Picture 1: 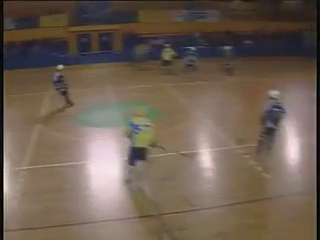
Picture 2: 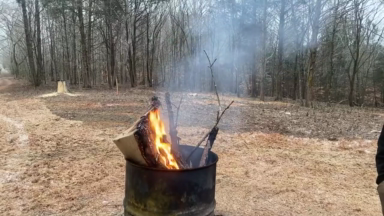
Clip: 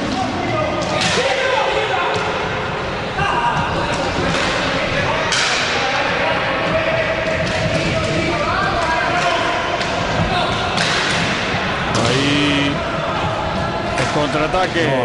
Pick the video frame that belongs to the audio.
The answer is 1